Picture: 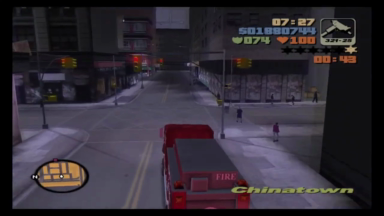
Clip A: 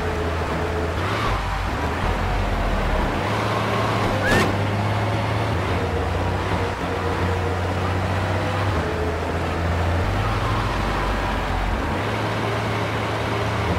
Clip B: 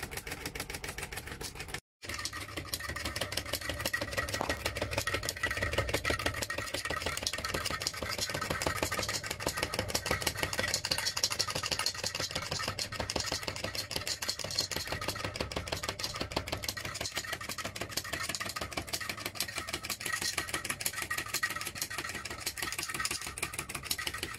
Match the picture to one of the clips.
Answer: A